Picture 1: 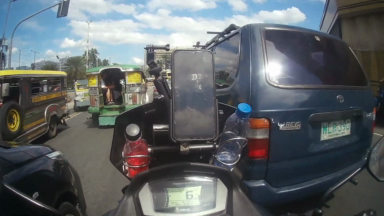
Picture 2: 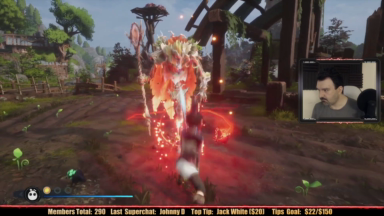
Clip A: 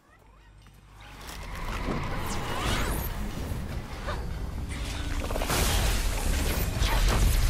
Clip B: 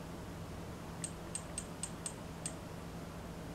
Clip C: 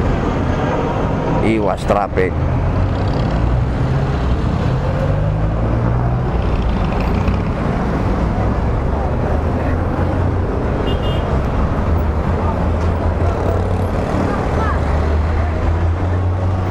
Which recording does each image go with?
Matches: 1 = C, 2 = A